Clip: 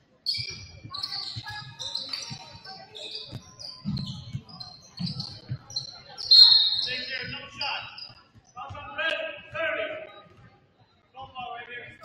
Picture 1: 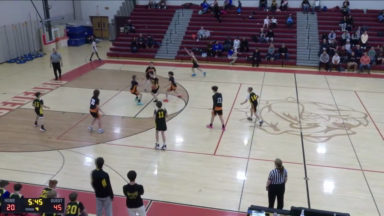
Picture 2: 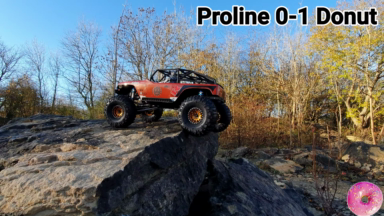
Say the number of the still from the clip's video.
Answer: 1